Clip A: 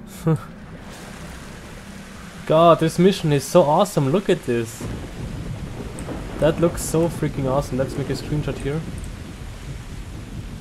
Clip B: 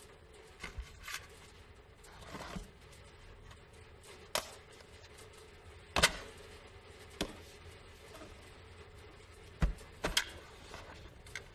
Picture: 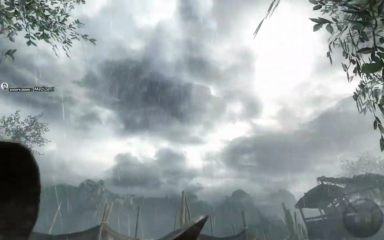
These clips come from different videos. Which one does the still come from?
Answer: A